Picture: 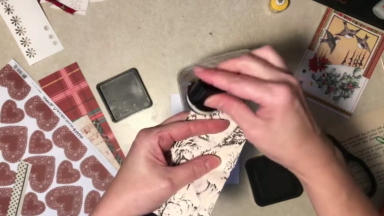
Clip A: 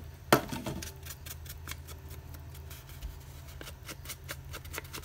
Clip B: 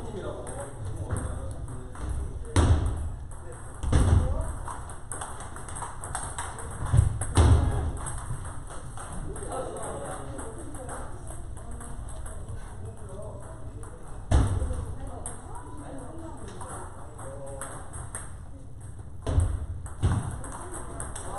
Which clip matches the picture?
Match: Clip A